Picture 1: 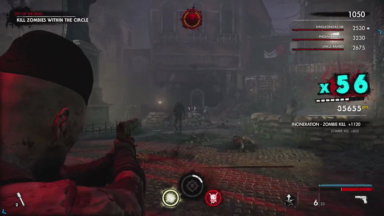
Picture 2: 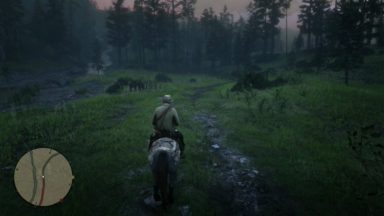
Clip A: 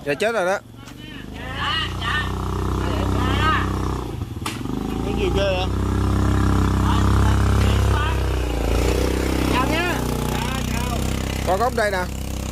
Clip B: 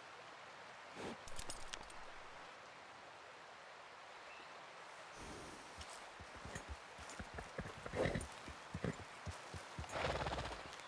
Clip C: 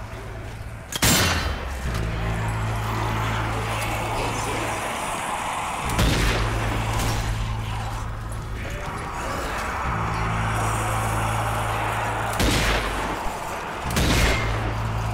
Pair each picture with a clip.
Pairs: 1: C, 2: B